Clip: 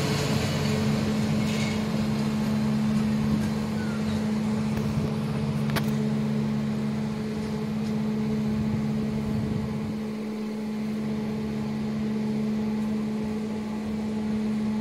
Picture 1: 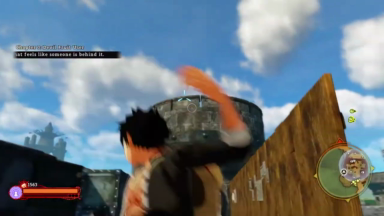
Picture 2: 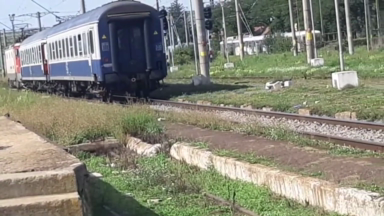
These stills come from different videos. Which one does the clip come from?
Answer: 2